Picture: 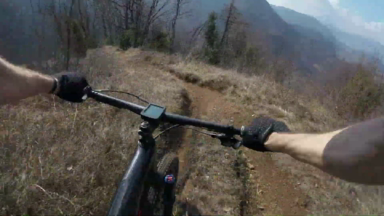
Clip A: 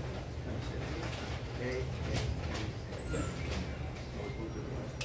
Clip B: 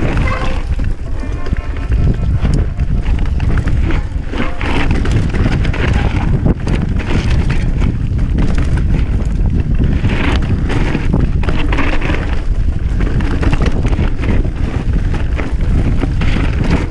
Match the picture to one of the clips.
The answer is B